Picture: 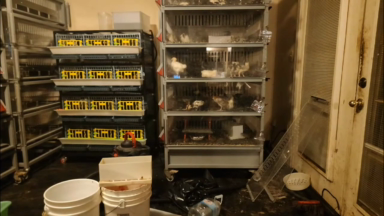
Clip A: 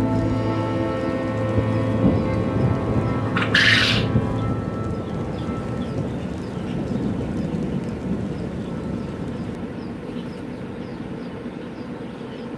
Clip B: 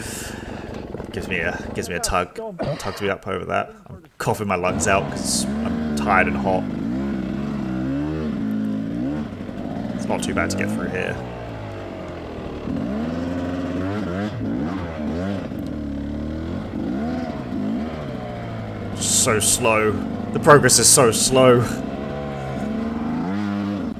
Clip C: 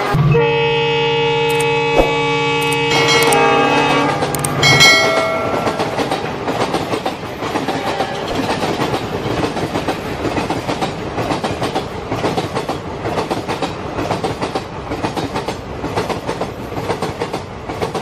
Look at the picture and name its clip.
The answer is A